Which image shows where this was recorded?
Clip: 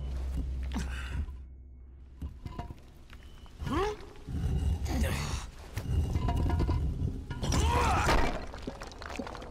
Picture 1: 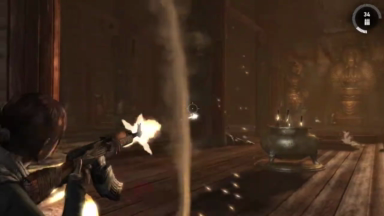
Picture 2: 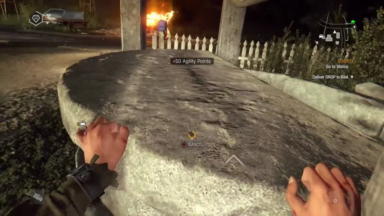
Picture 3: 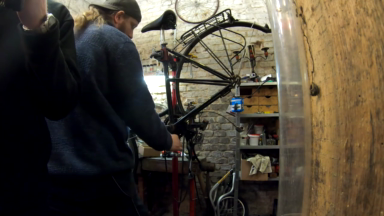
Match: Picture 2